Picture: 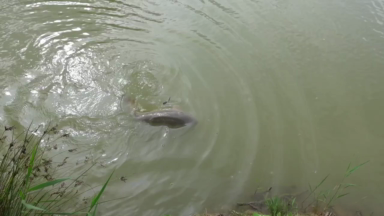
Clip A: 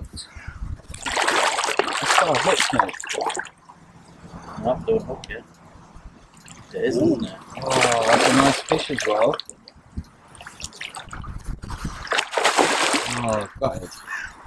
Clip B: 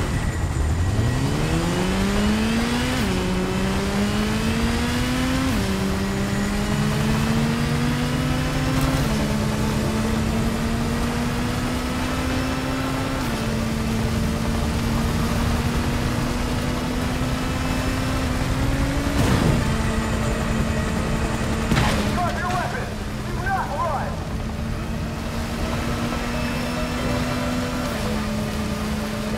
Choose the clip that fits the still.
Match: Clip A